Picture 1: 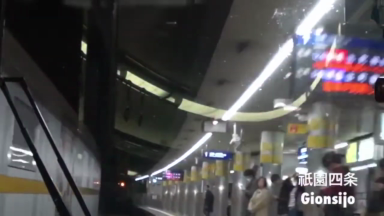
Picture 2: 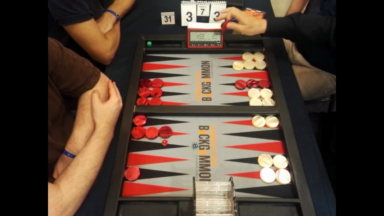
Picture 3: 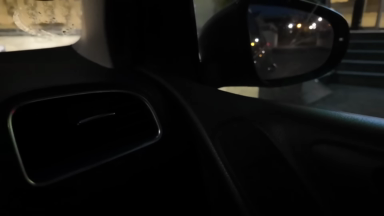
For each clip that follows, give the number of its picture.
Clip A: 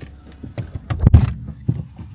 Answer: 3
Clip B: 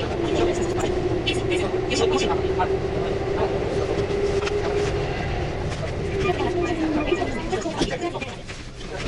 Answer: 1